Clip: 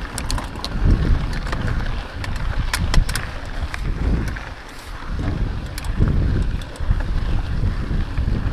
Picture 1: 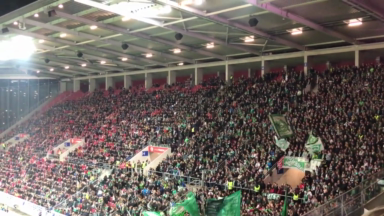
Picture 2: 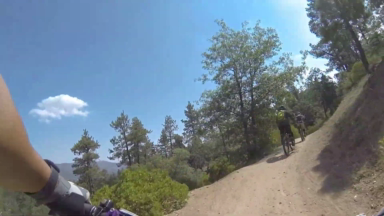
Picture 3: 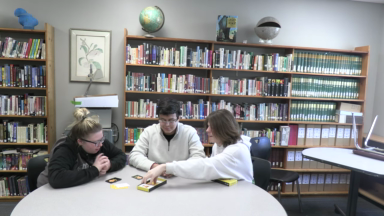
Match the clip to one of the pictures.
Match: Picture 2